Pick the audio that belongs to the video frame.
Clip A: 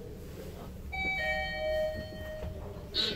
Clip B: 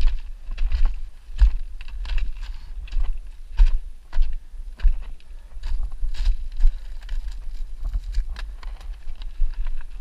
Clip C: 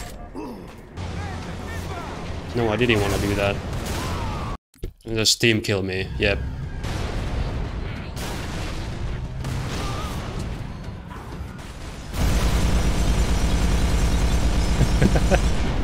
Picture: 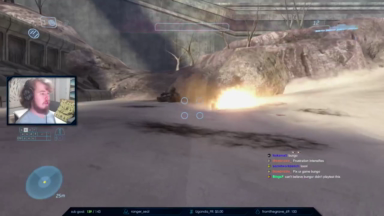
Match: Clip C